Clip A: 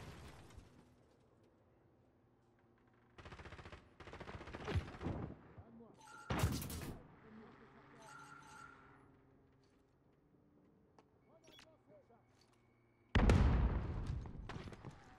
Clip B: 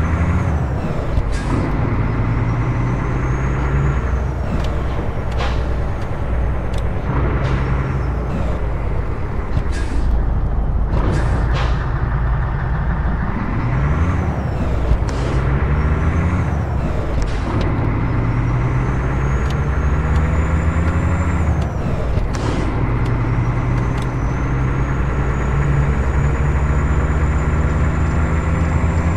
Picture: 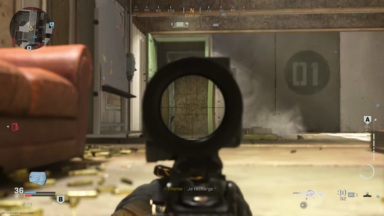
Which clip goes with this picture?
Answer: A